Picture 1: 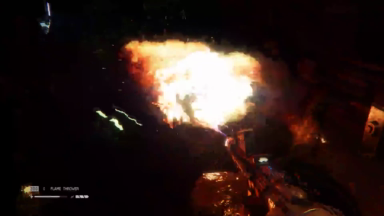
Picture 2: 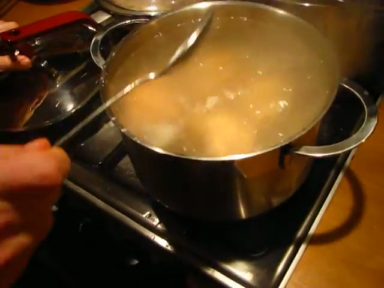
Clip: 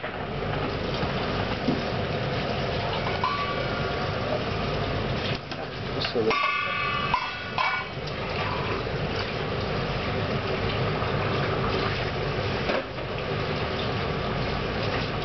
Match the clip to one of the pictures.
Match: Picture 2